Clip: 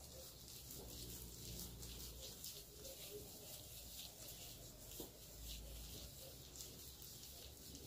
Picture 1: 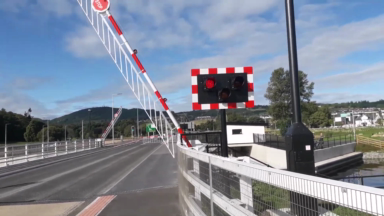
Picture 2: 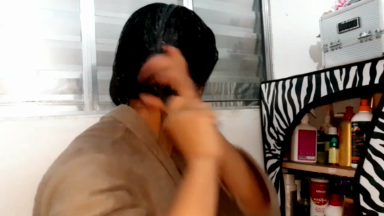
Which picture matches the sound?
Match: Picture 2